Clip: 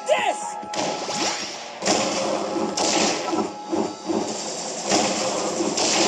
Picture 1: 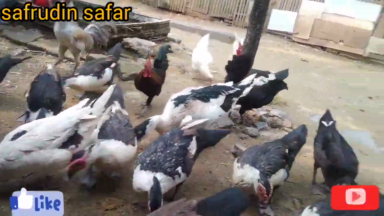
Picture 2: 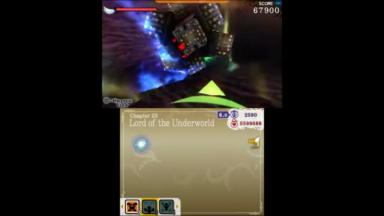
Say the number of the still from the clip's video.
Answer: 2